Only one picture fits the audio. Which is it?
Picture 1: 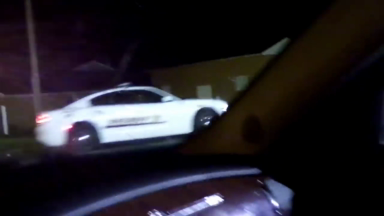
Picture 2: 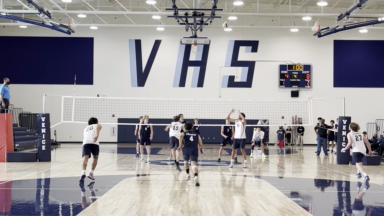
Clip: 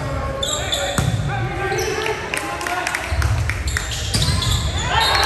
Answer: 2